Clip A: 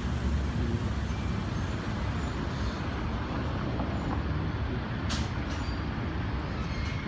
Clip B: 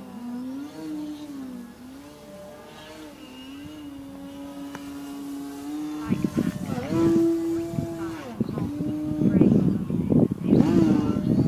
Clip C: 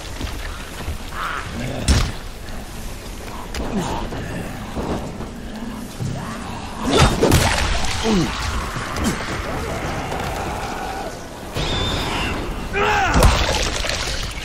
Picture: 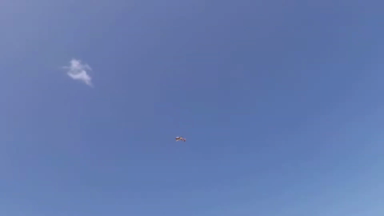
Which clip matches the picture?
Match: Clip B